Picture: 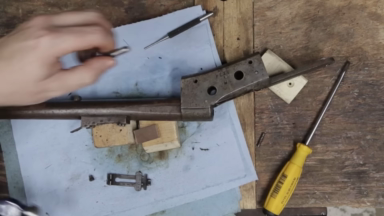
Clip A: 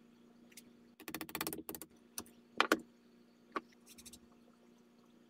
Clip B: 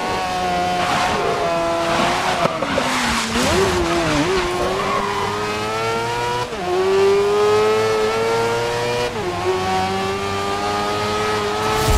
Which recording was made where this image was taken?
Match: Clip A